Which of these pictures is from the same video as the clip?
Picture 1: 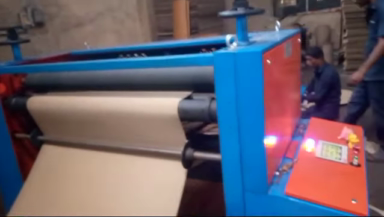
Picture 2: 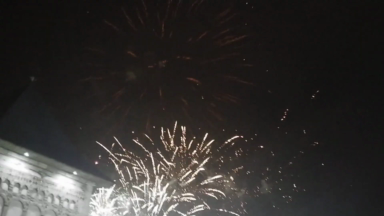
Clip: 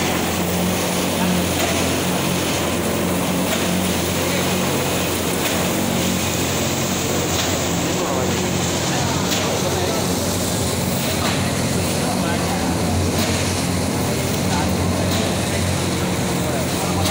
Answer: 1